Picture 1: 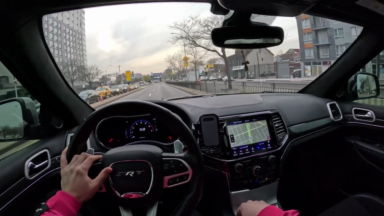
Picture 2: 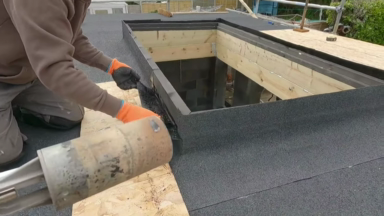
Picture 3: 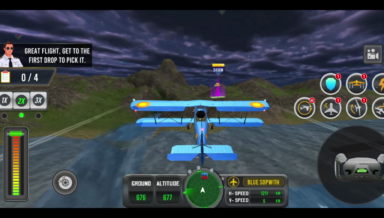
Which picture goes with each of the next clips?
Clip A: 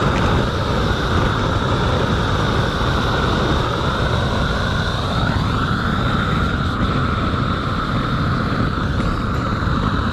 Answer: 2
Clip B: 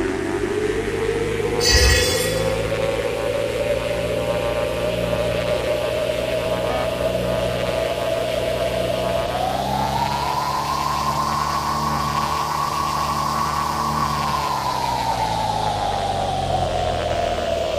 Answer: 3